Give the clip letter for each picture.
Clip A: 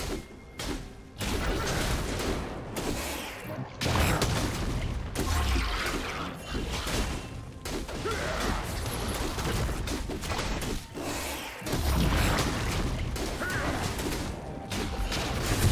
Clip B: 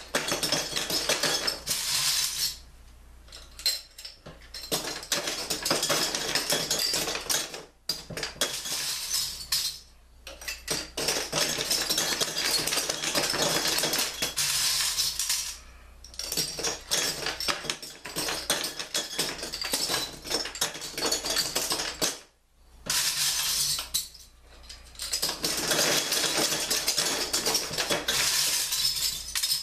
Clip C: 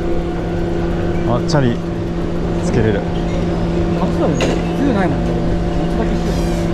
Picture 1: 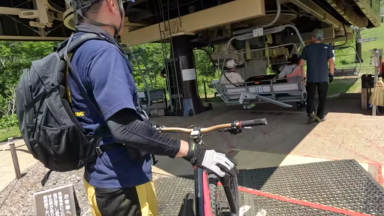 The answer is C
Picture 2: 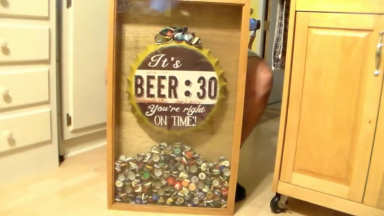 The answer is B